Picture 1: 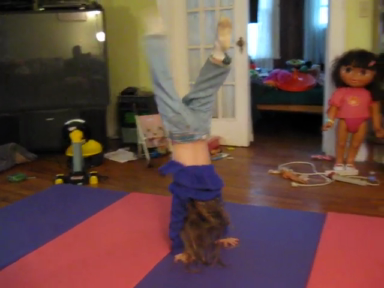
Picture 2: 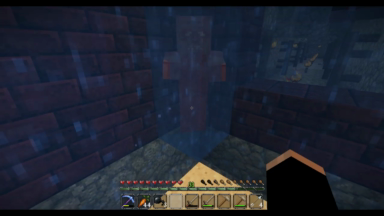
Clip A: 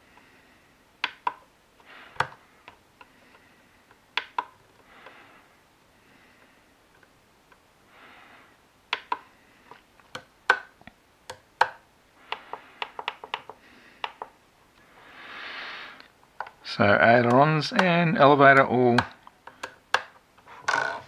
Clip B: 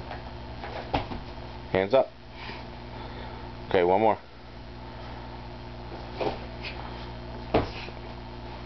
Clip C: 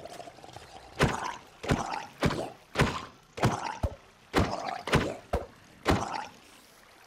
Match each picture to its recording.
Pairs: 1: B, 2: C